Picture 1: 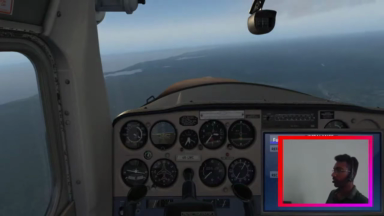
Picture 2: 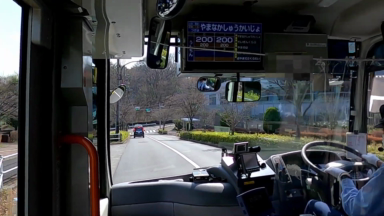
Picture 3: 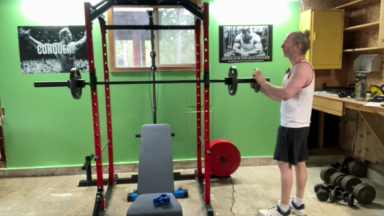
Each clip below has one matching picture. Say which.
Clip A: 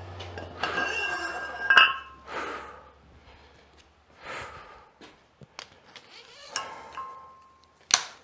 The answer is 3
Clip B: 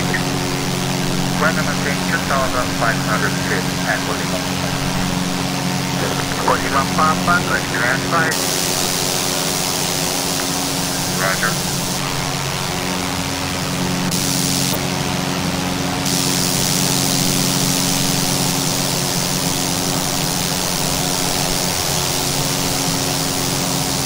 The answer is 1